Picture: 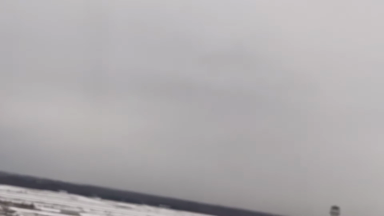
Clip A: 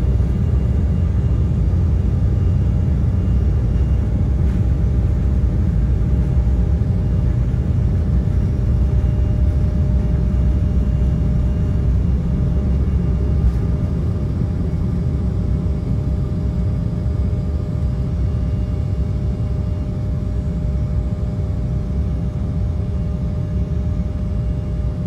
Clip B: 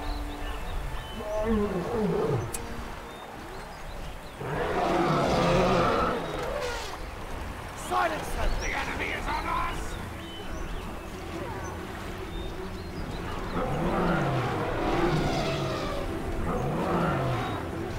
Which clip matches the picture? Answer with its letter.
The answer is A